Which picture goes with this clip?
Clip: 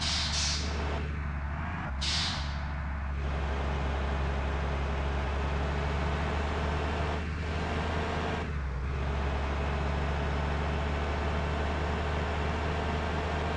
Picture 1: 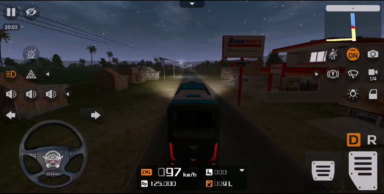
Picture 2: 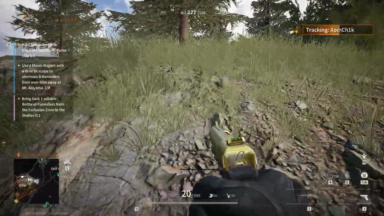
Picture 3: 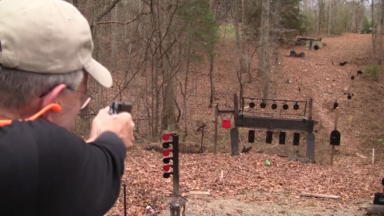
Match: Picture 1